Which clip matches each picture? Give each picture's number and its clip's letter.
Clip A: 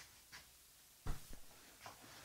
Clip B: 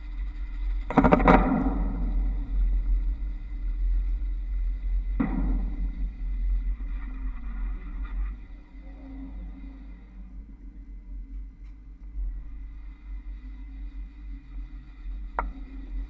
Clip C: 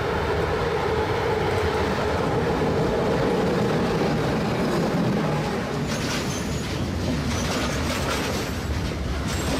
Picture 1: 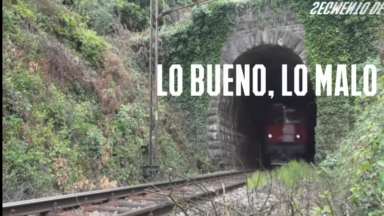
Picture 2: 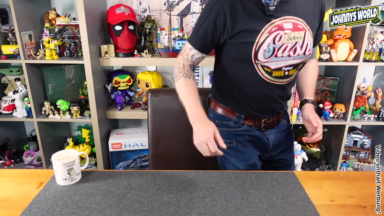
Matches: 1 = C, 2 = A